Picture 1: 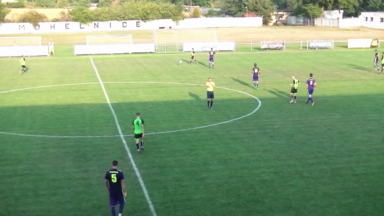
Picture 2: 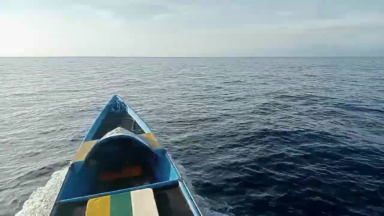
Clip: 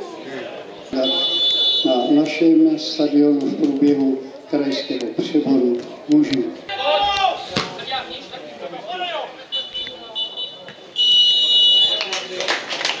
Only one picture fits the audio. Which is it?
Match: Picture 1